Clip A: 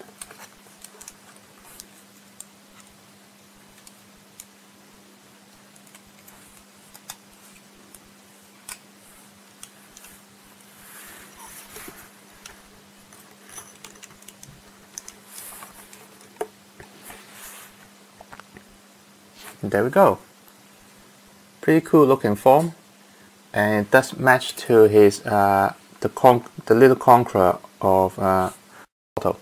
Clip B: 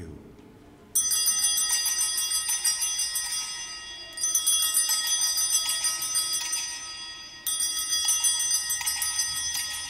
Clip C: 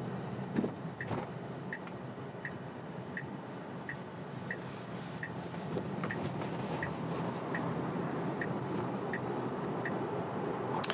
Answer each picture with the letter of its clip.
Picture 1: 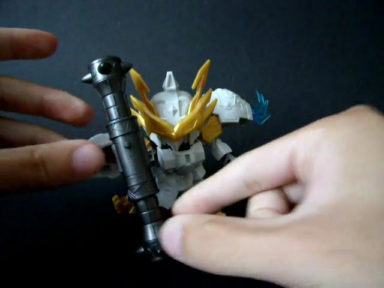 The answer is A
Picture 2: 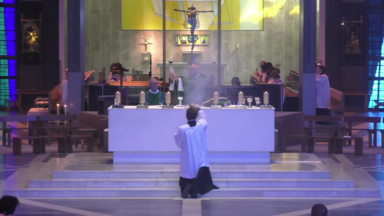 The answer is B